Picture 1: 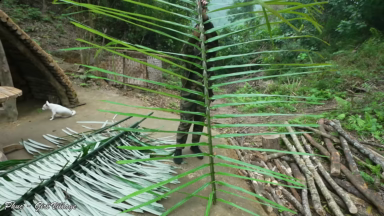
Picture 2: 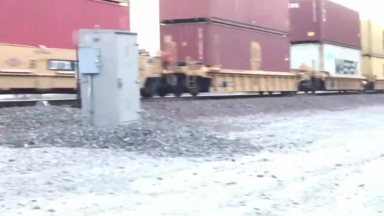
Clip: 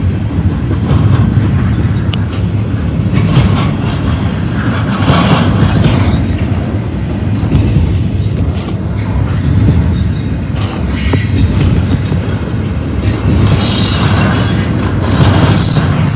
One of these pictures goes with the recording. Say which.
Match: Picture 2